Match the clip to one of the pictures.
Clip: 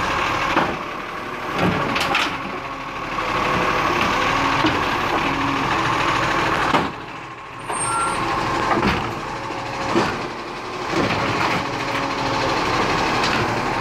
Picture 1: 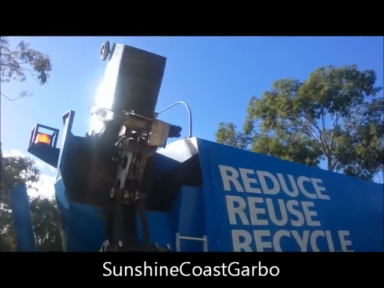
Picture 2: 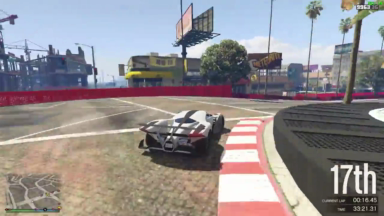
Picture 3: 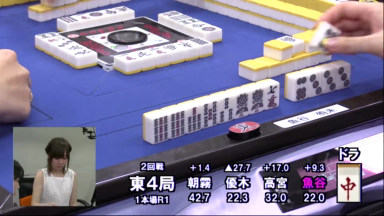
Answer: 1